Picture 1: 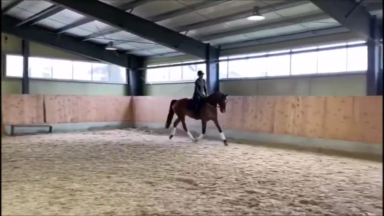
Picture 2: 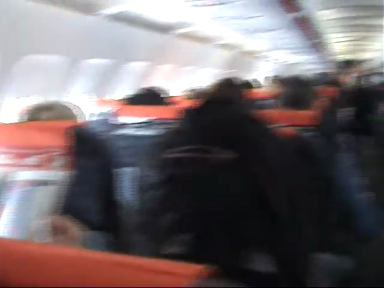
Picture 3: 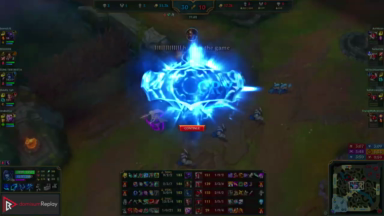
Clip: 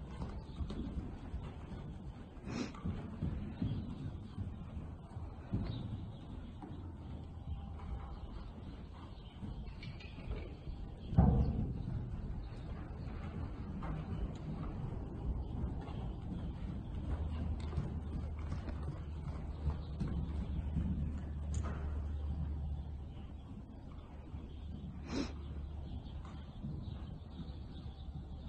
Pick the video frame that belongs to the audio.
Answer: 1